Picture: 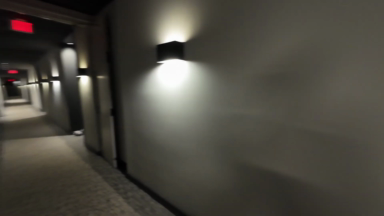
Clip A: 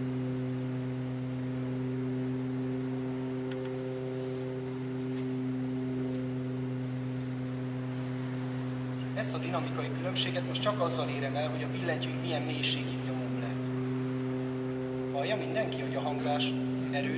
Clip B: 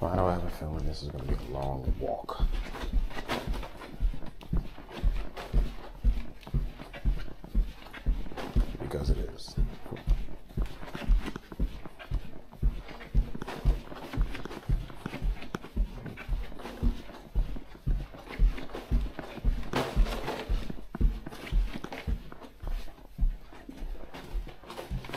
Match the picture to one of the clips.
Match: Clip B